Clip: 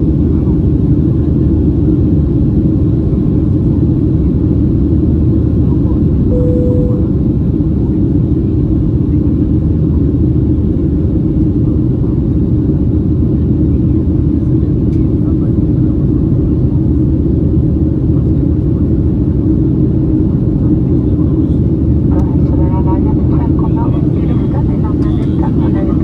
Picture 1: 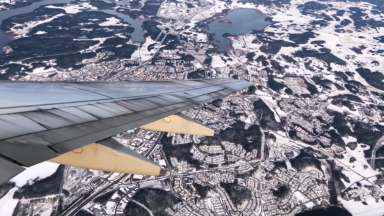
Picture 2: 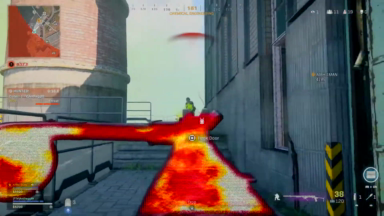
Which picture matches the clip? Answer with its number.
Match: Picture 1